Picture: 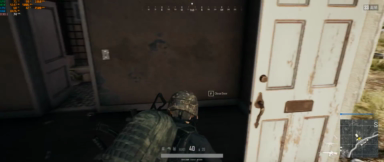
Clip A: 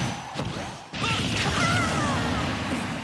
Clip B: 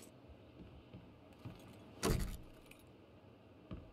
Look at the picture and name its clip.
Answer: B